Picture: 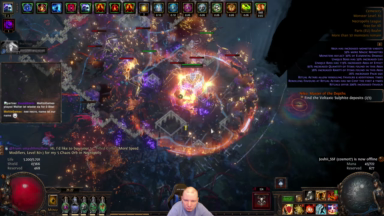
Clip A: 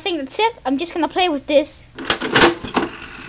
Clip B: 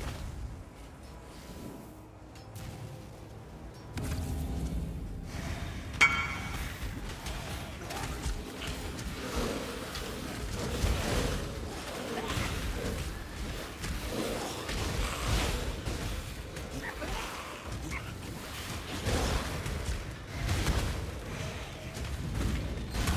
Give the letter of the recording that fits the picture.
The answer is B